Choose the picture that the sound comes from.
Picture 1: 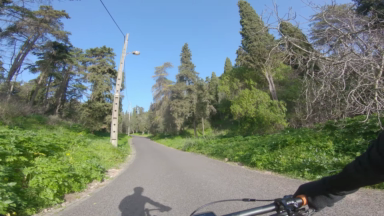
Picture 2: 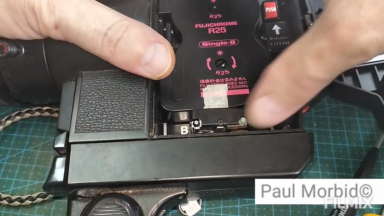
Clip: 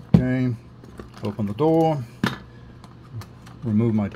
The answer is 2